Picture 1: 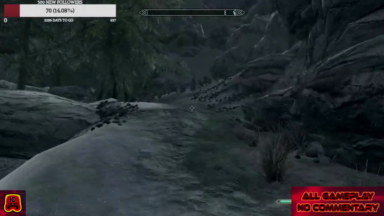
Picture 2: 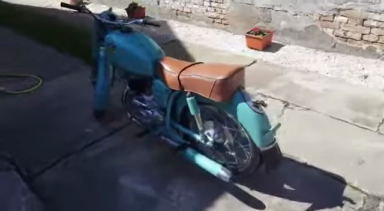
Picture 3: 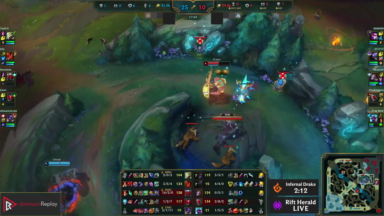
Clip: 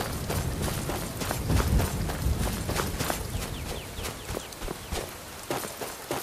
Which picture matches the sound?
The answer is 1